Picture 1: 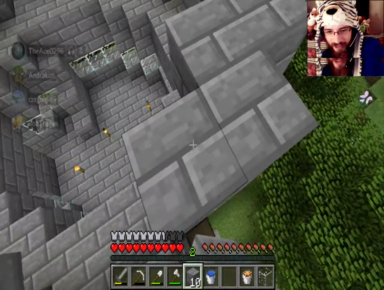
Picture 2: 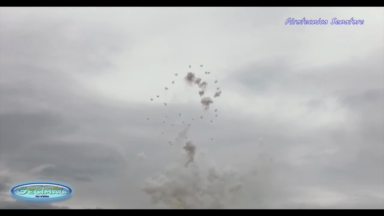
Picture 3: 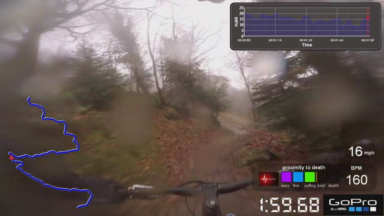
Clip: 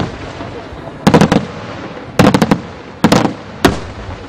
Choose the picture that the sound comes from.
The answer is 2